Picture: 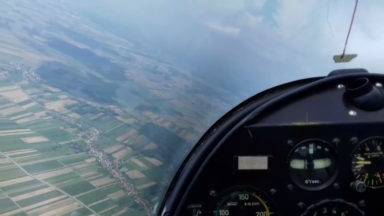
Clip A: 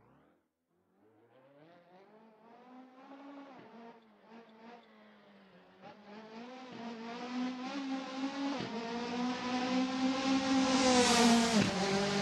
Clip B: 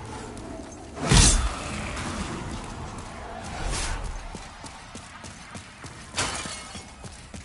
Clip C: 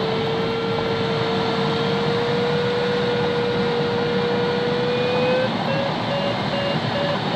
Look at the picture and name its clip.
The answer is C